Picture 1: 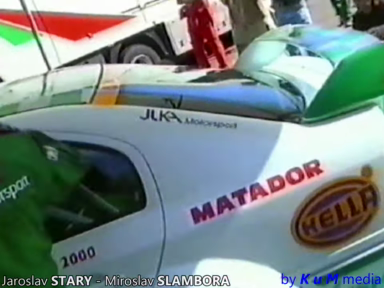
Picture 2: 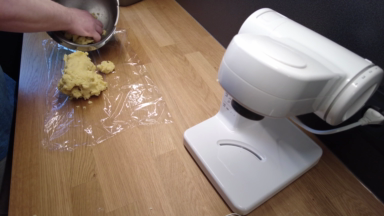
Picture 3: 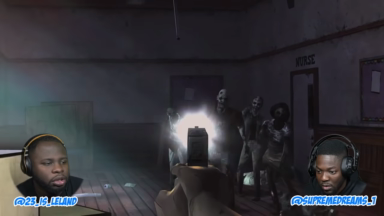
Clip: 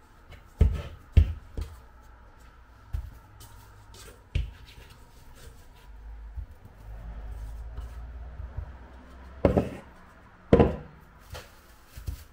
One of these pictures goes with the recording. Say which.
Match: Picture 2